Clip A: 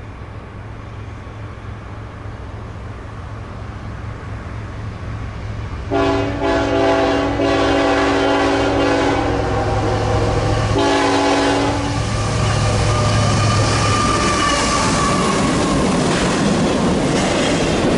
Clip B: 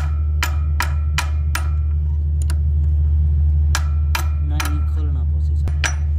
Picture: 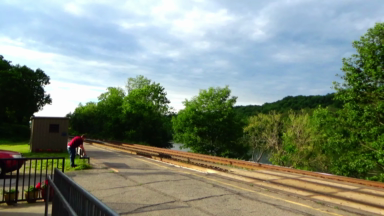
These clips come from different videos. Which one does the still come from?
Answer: A